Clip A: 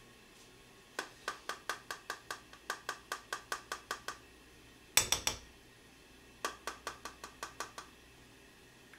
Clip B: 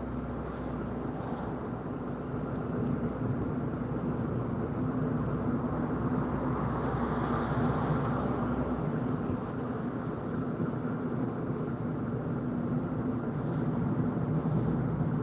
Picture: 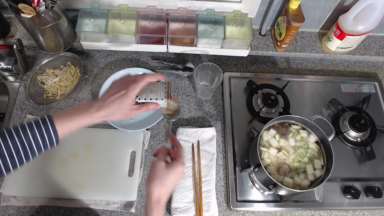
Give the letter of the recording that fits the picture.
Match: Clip A